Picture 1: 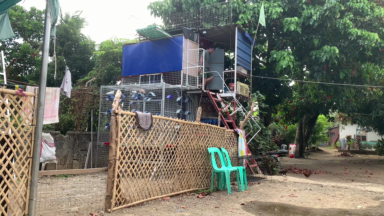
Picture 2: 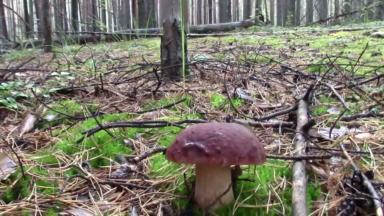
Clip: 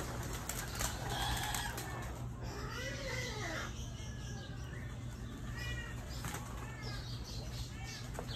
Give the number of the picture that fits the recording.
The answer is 1